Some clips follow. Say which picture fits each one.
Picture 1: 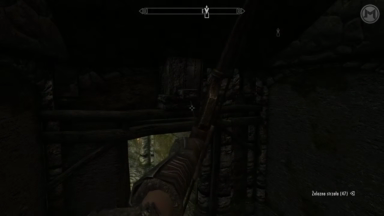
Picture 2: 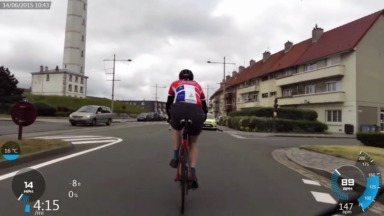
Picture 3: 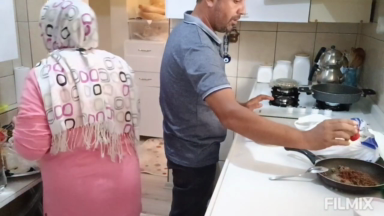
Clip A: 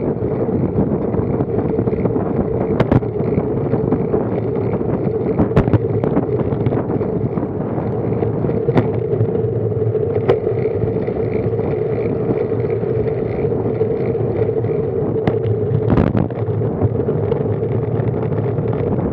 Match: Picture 2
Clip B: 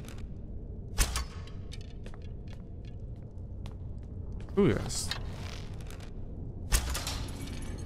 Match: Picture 1